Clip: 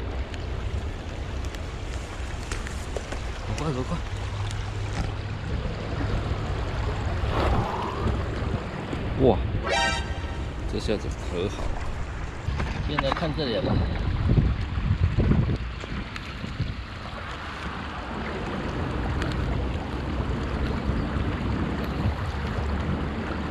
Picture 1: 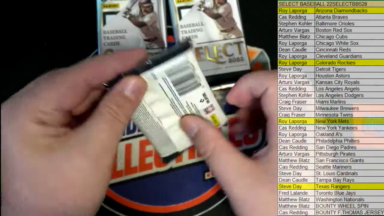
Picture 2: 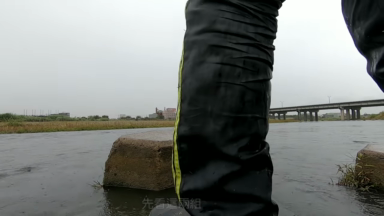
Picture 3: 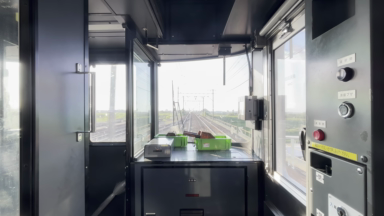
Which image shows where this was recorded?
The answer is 2